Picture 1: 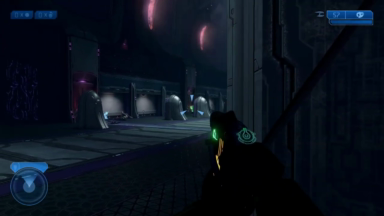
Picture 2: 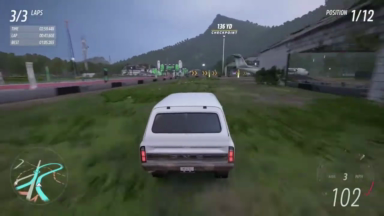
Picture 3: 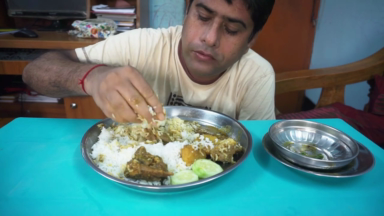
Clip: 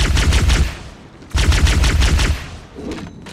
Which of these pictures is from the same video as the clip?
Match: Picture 1